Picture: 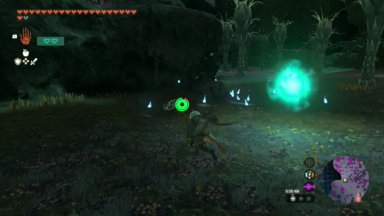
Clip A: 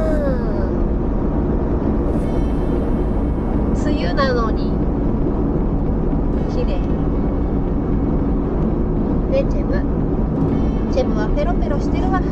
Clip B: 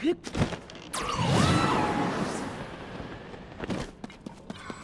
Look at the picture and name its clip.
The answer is B